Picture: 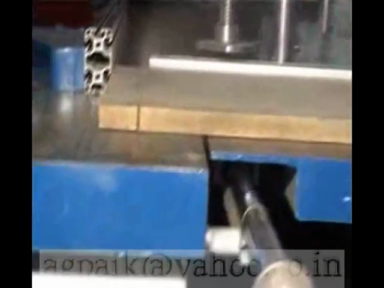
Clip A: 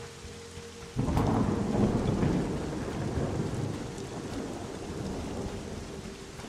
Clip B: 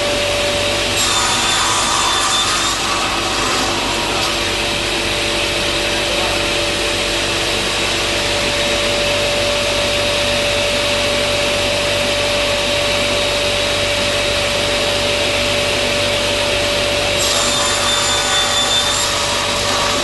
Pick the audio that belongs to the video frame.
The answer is B